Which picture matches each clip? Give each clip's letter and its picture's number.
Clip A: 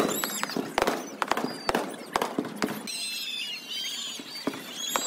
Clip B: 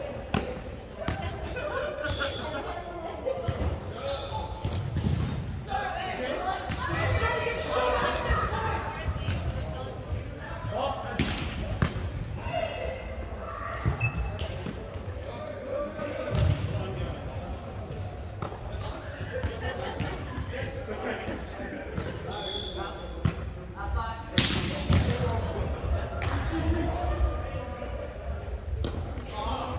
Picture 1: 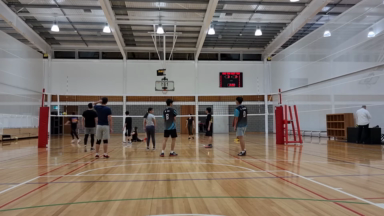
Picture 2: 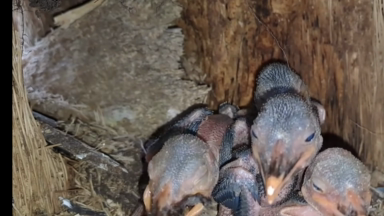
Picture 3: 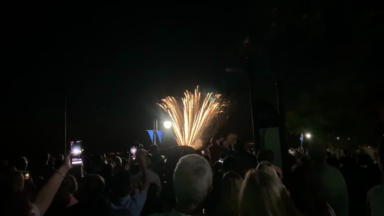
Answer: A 3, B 1